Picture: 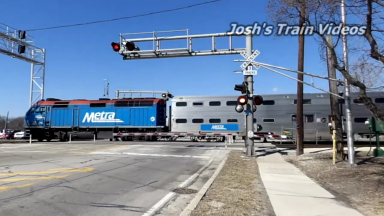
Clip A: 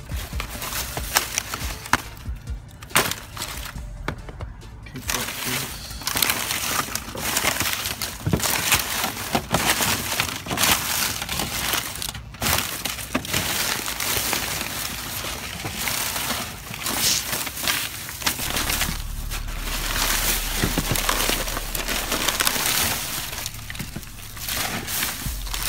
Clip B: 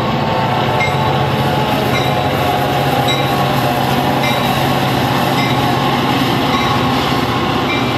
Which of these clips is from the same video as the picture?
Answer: B